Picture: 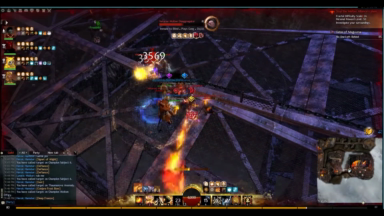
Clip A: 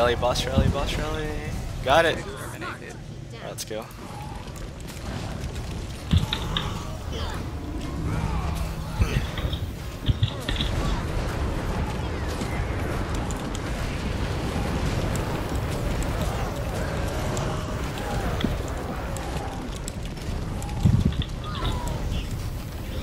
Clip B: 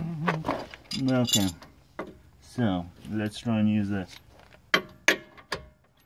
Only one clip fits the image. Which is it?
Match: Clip A